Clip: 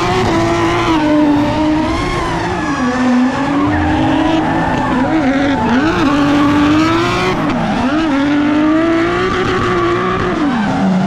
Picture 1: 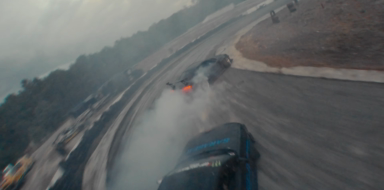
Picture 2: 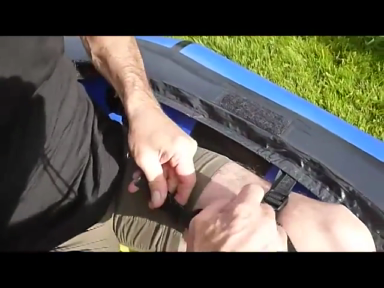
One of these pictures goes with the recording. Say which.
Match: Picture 1